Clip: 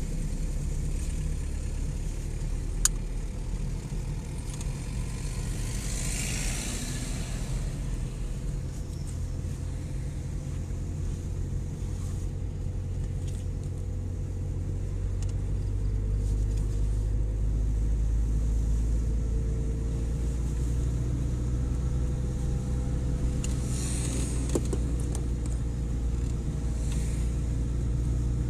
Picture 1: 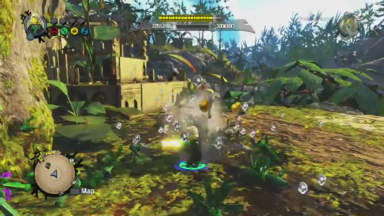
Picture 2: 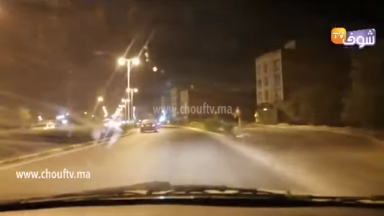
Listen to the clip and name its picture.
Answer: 2